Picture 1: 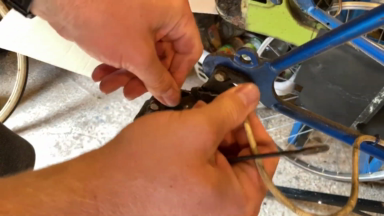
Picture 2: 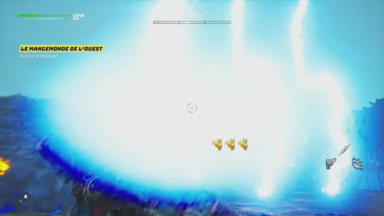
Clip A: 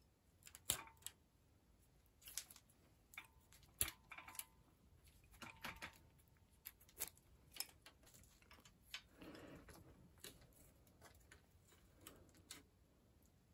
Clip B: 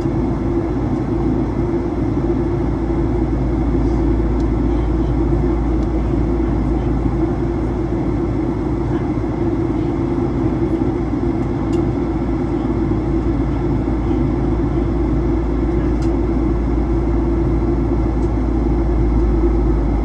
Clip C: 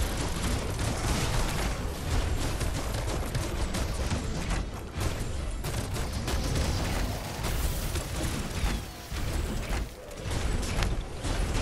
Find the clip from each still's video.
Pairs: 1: A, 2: C